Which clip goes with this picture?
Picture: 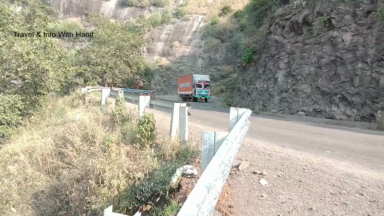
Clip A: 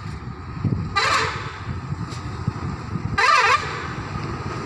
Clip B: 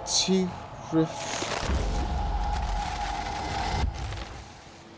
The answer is A